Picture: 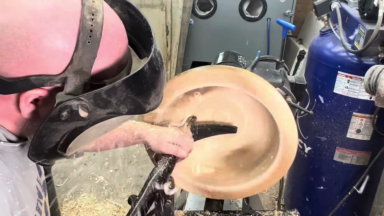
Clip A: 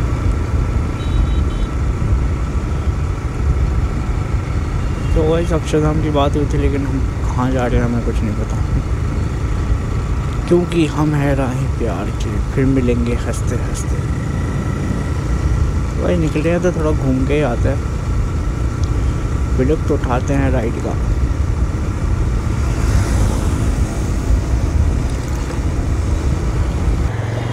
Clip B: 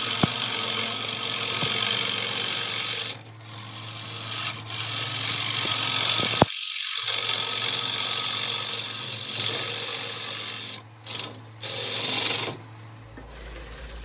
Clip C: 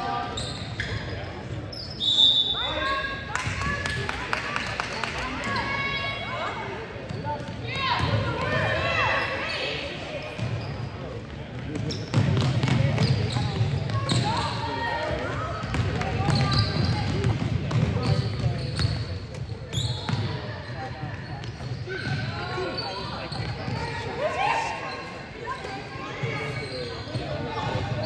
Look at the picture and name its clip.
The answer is B